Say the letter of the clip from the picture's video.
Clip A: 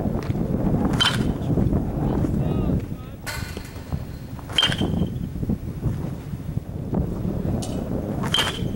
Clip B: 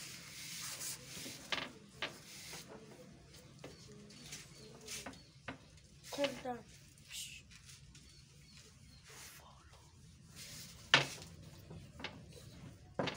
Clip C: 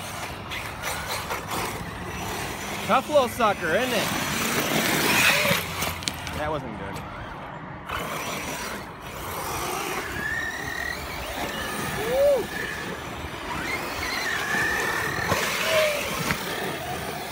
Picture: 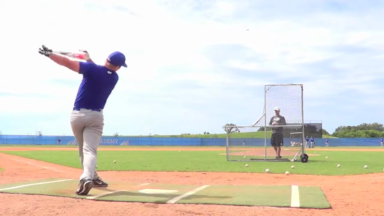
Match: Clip A